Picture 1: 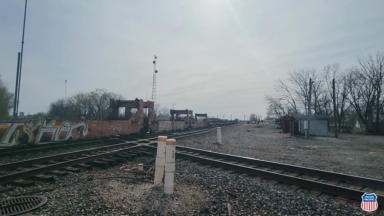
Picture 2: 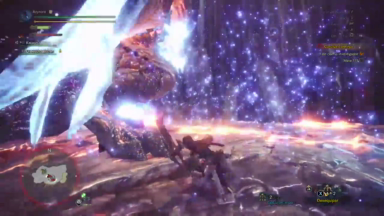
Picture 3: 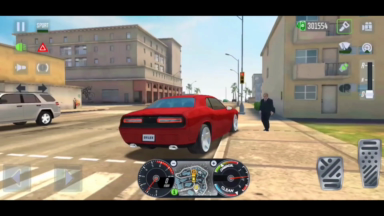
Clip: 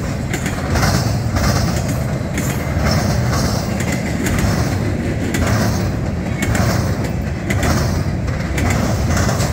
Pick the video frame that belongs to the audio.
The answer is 1